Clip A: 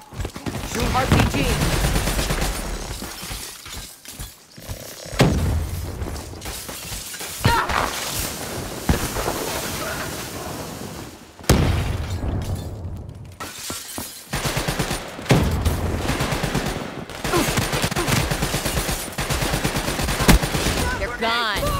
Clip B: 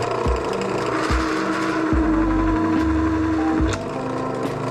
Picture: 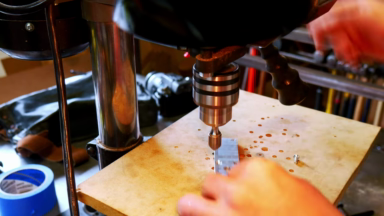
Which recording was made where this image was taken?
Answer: B